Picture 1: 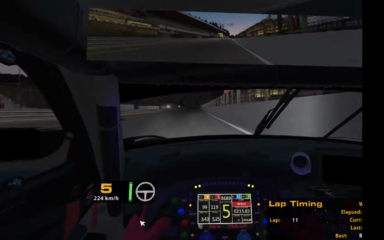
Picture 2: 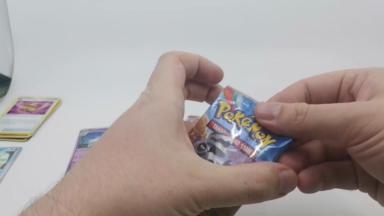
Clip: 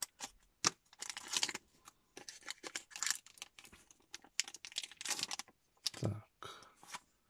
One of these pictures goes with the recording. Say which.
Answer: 2